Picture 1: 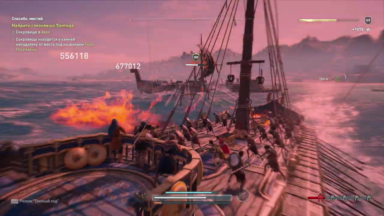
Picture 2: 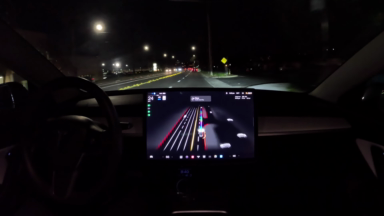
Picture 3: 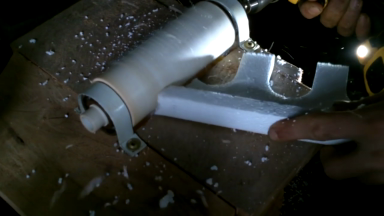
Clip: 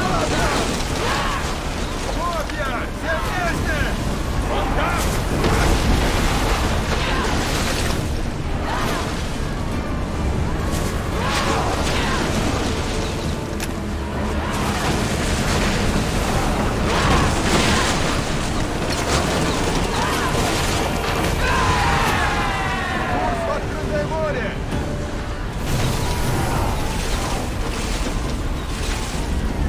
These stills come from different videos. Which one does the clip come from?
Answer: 1